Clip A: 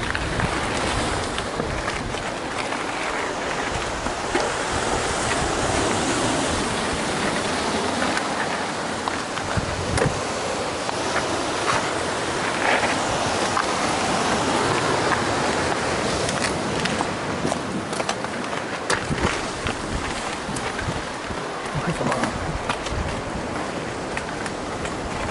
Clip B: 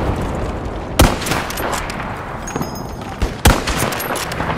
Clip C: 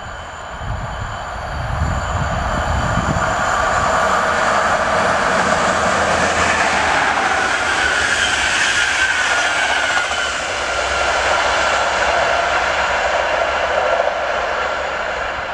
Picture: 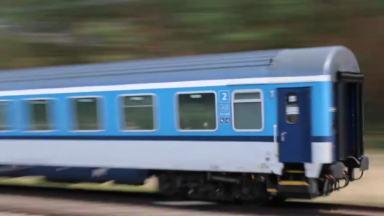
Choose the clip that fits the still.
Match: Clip C